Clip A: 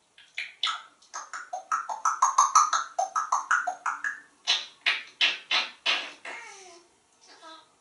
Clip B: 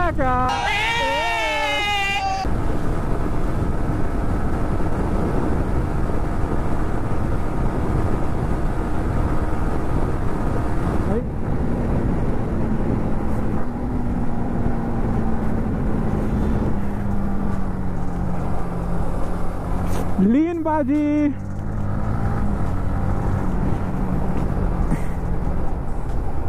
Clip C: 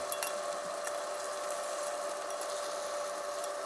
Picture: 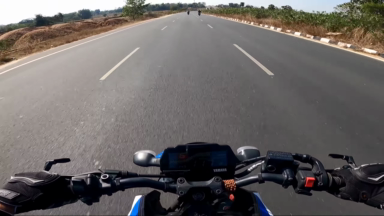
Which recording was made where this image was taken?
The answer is B